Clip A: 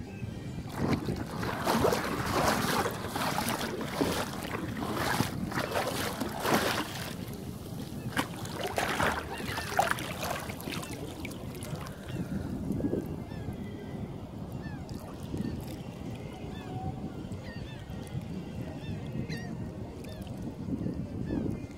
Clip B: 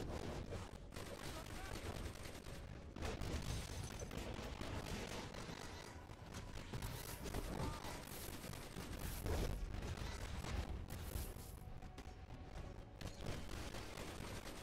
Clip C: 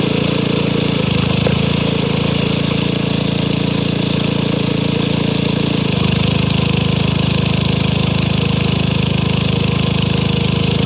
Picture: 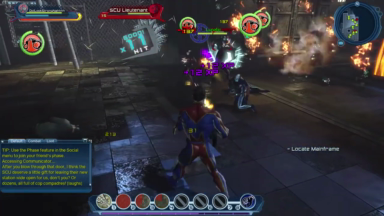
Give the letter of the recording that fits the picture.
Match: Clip B